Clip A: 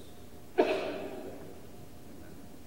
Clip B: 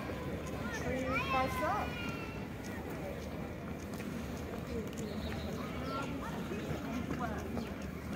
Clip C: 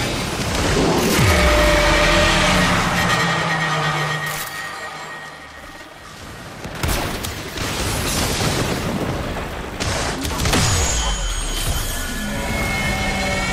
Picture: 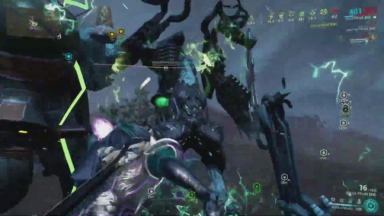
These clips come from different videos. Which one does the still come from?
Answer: C